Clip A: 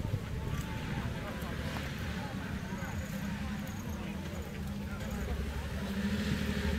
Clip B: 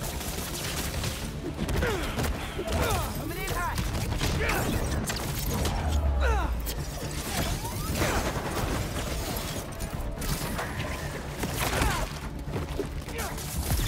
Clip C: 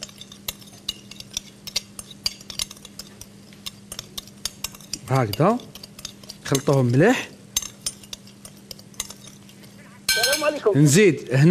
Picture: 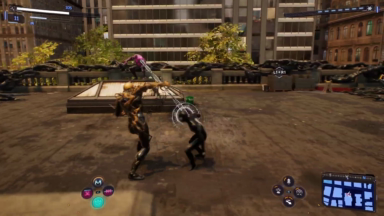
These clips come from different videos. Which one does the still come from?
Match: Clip B